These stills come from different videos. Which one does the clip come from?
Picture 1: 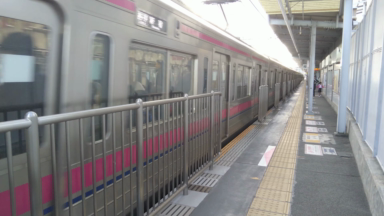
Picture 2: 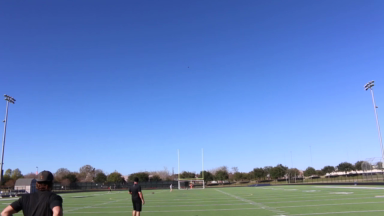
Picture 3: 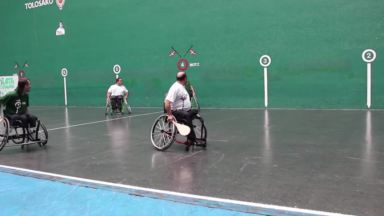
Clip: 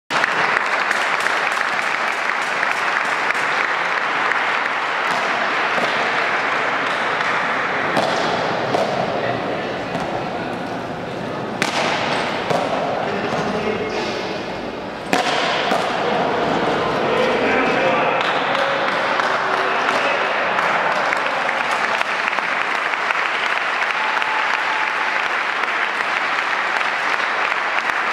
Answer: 3